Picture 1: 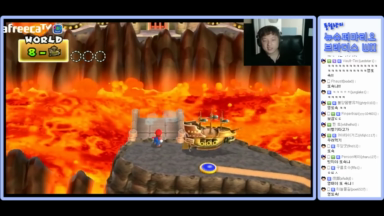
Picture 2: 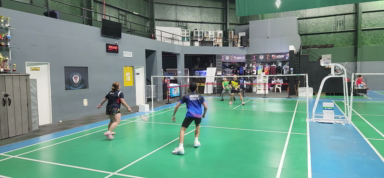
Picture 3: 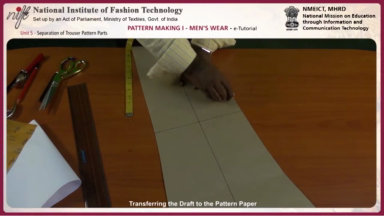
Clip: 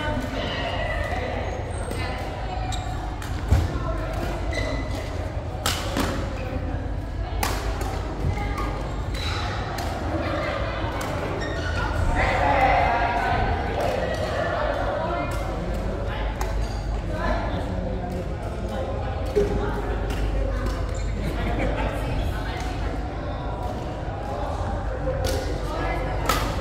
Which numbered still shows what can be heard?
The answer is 2